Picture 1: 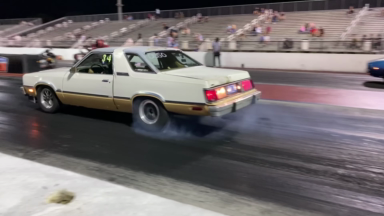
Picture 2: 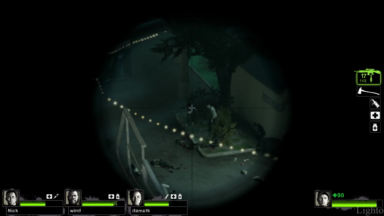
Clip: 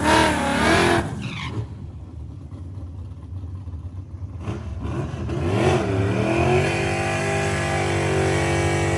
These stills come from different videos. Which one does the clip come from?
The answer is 1